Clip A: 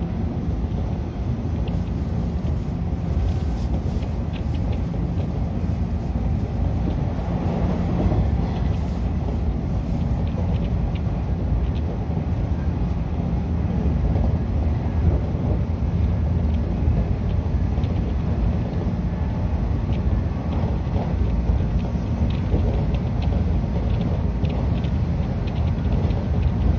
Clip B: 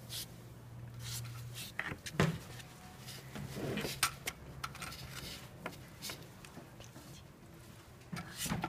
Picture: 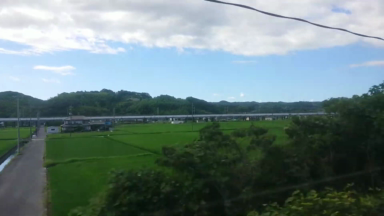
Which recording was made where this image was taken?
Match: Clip A